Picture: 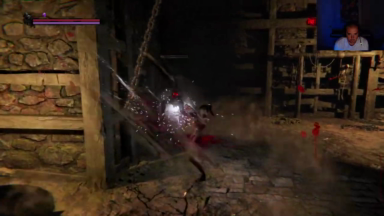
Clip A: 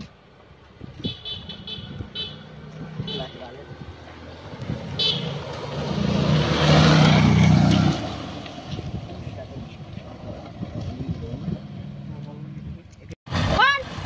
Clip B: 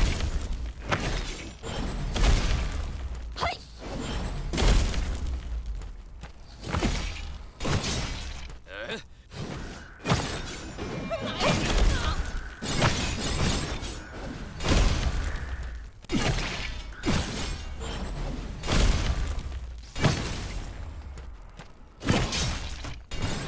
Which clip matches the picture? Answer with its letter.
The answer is B